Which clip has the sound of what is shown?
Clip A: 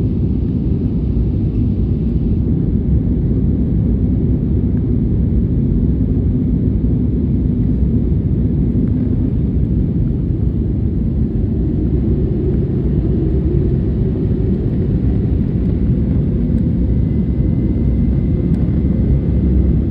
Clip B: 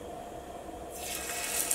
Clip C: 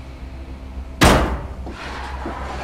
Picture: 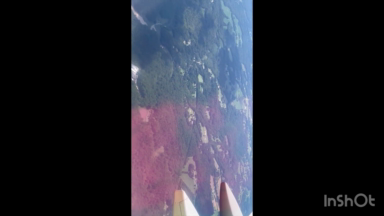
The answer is A